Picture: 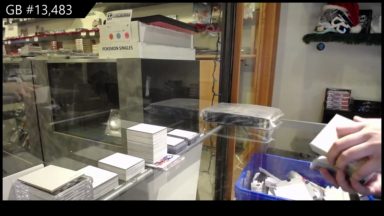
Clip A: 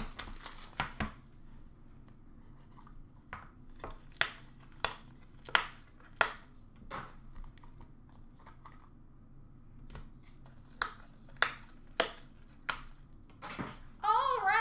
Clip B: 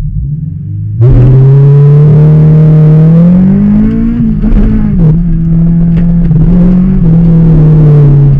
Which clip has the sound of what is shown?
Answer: A